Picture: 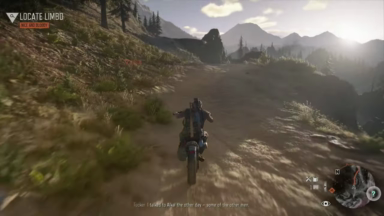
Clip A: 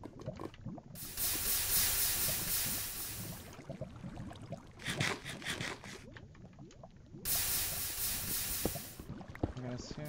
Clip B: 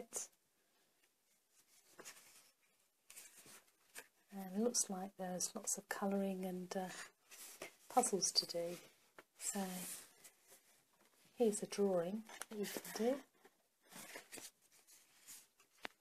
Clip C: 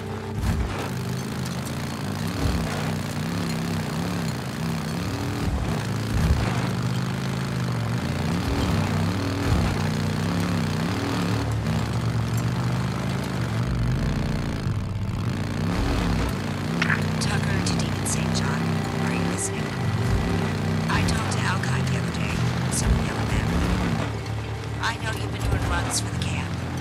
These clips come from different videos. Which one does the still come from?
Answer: C